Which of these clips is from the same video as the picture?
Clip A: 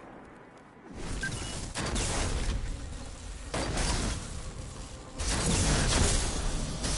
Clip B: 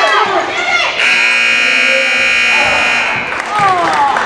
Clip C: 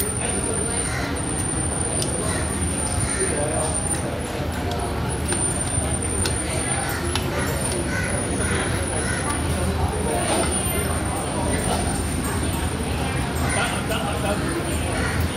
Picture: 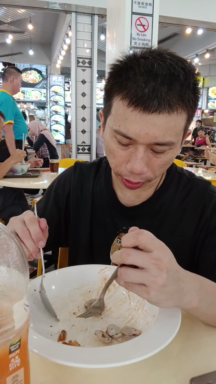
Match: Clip C